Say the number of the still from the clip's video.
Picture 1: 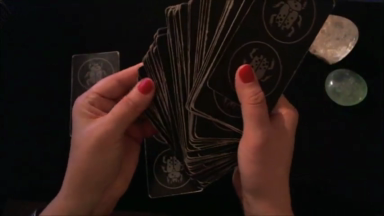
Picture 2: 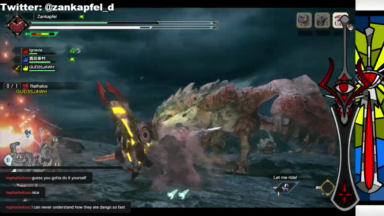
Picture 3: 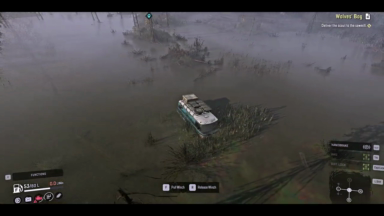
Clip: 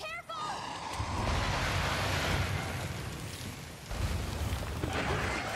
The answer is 2